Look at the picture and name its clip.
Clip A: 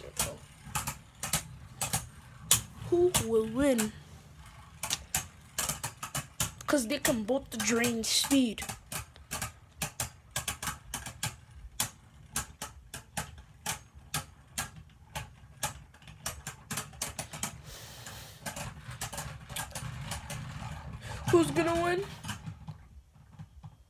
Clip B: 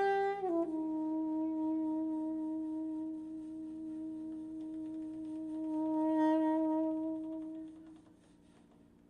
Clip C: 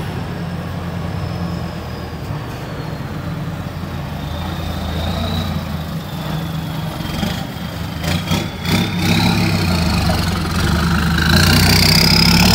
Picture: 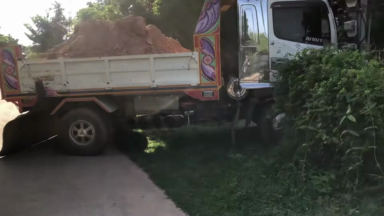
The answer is C